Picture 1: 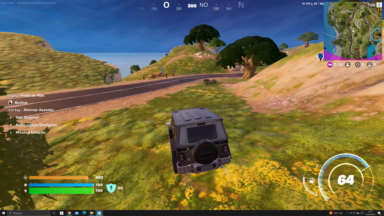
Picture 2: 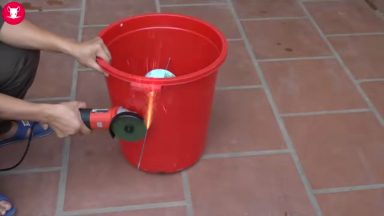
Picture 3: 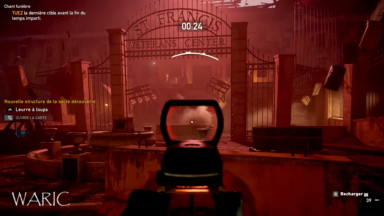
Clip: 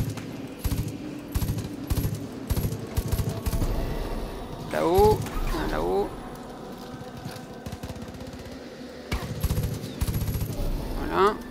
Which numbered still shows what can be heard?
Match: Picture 3